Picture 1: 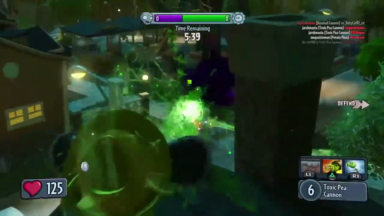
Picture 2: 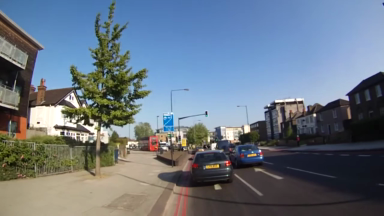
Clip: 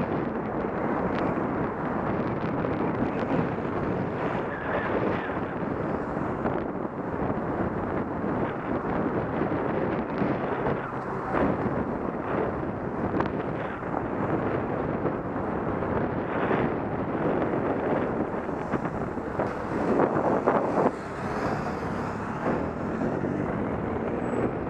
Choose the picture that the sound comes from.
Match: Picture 2